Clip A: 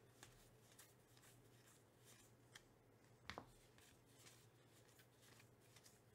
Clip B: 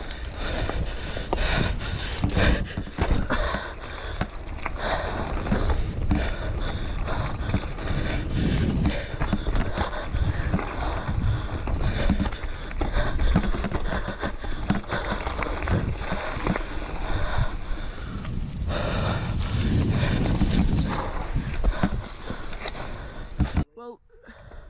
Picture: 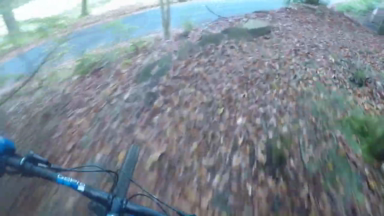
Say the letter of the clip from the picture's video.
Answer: B